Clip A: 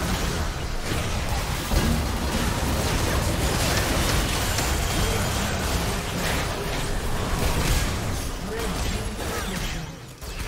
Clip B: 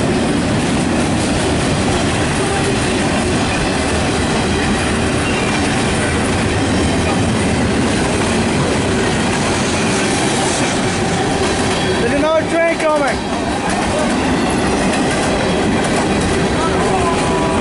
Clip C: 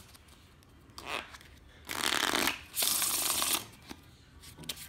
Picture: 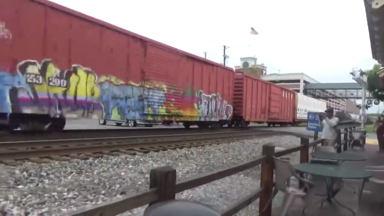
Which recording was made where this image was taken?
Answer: B